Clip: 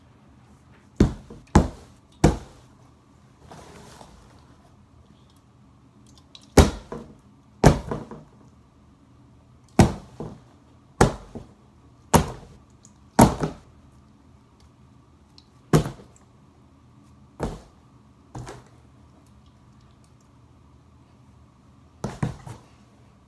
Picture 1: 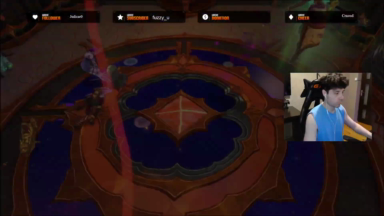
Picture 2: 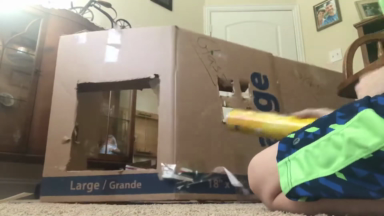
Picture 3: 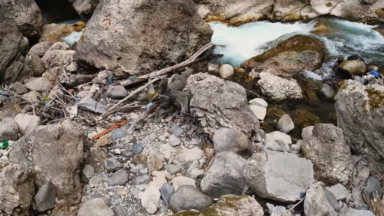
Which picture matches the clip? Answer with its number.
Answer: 2